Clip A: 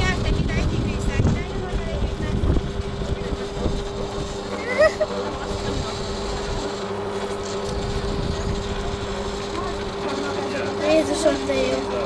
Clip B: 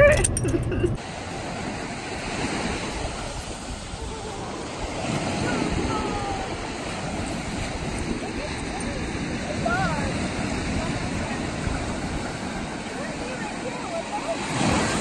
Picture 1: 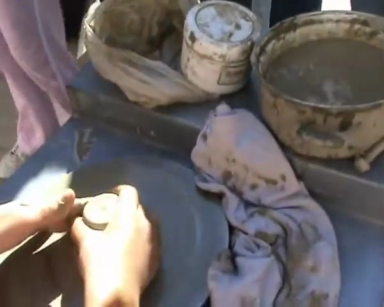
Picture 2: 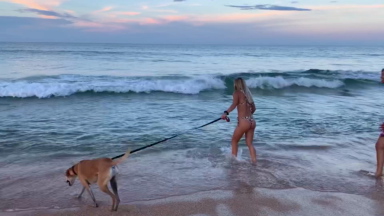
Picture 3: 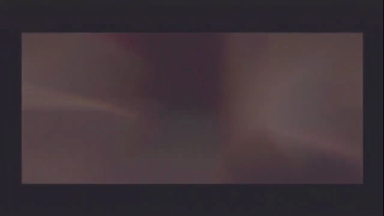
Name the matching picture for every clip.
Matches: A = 1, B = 2